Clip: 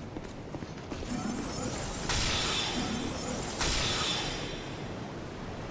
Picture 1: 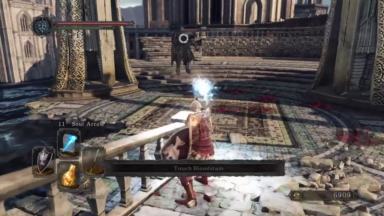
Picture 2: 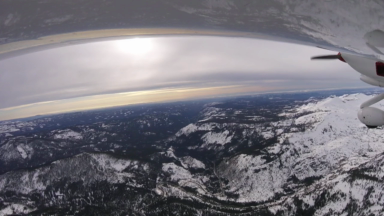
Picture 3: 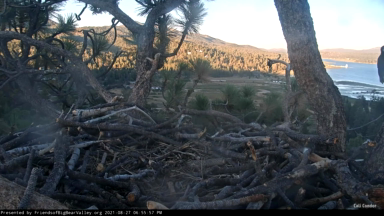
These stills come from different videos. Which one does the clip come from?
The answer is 1